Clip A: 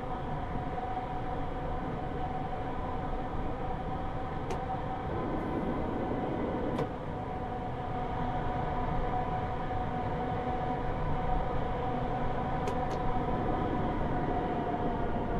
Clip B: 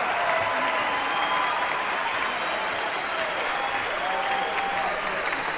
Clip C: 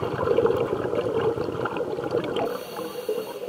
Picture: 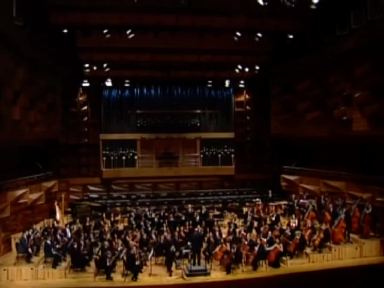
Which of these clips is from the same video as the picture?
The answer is B